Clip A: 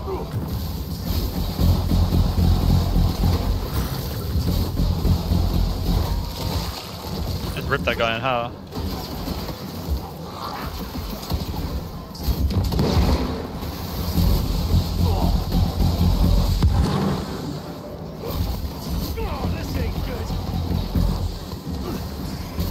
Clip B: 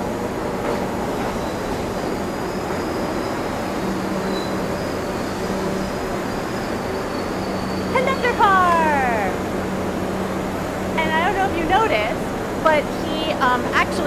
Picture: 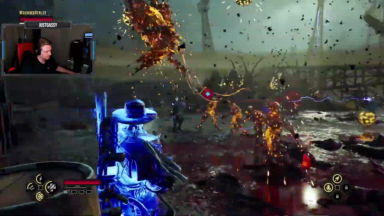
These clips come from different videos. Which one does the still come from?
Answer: A